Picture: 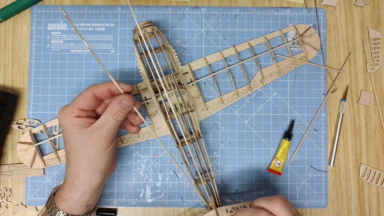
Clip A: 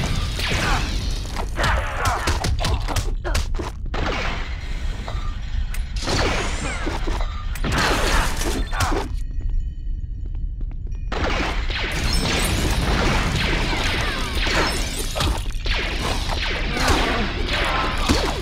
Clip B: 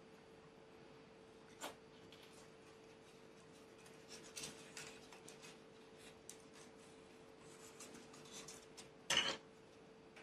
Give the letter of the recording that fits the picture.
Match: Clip B